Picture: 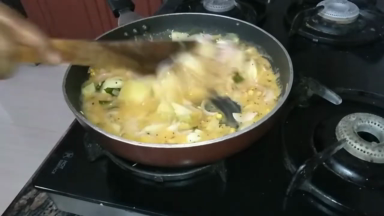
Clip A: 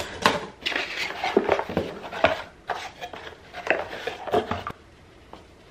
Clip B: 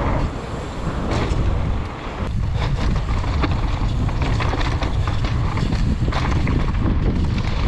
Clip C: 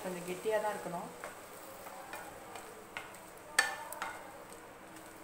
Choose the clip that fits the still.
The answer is C